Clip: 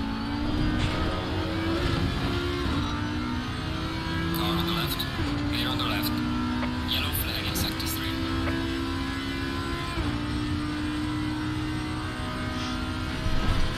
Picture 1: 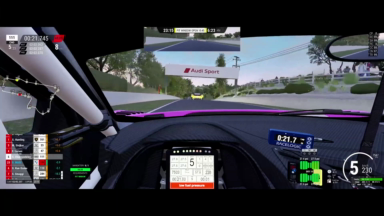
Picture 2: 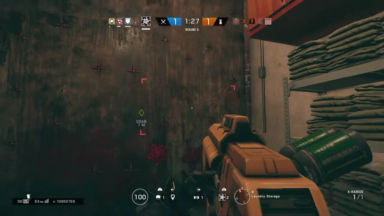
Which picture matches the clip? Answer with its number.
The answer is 1